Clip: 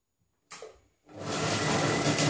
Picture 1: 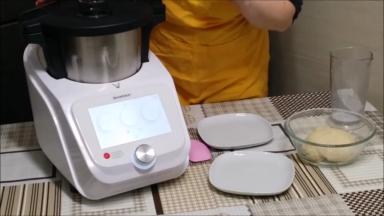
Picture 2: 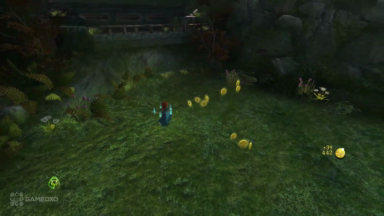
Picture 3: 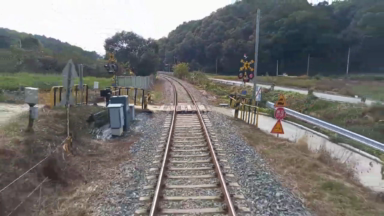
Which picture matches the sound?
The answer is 1